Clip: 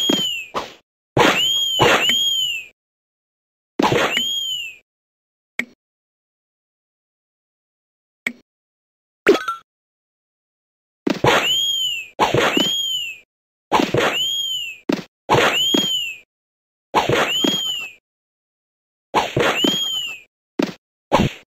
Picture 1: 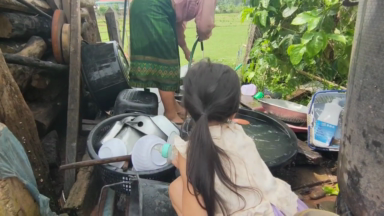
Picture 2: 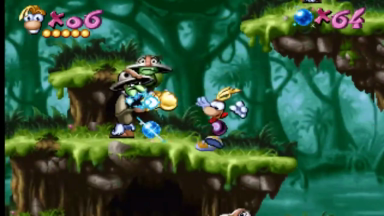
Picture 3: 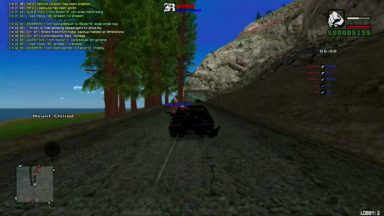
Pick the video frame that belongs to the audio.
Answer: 2